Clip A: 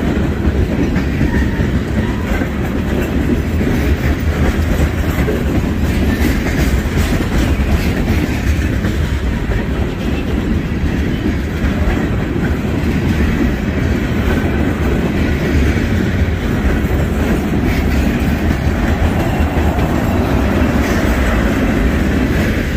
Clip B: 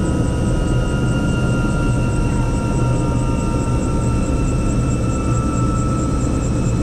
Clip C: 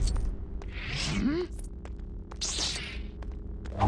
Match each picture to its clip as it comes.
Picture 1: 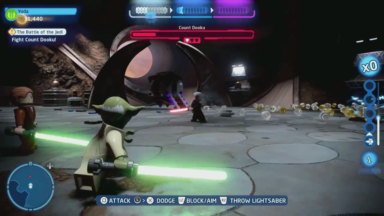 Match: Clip C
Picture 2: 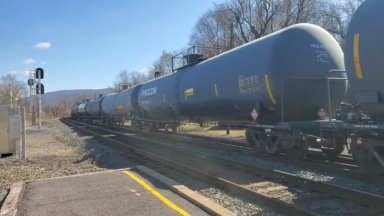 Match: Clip A